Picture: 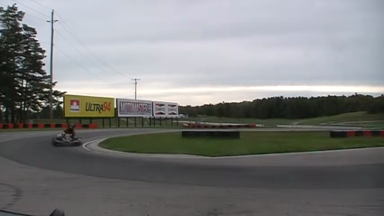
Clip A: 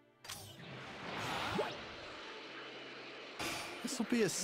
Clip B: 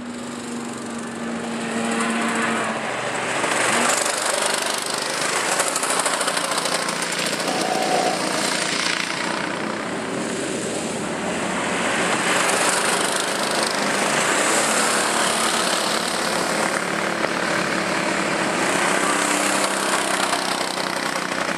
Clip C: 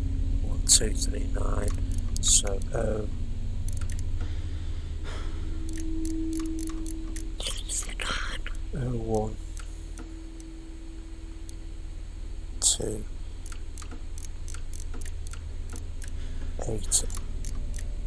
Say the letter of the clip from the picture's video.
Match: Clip B